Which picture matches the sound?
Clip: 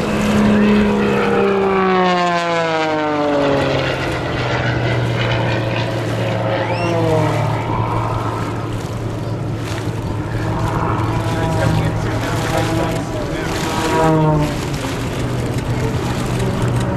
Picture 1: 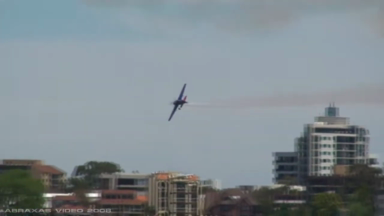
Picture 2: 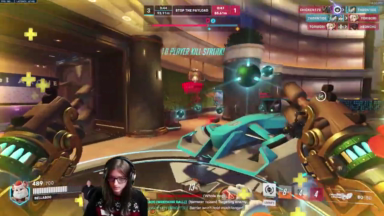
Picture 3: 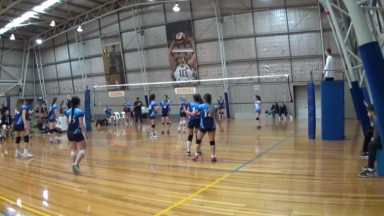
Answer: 1